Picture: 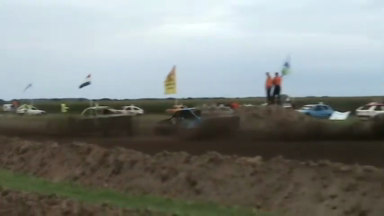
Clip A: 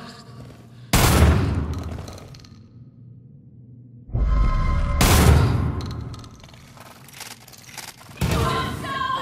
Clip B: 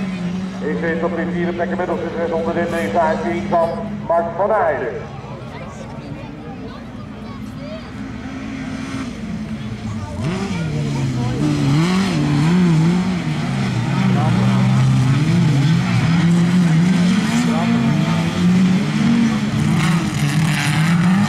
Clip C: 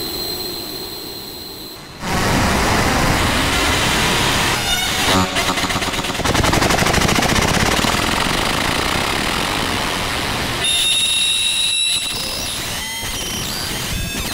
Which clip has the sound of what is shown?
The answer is B